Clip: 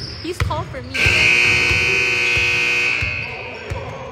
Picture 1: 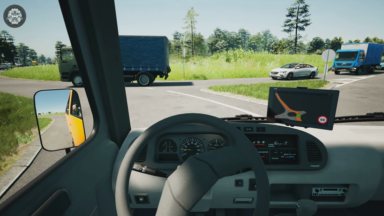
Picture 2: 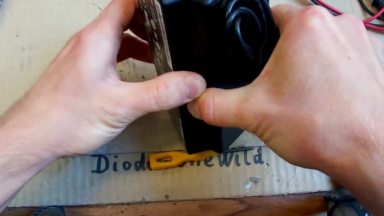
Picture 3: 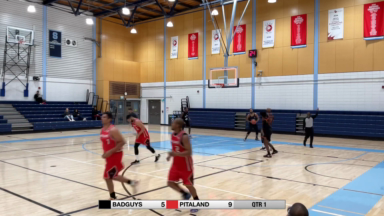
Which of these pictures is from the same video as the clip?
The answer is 3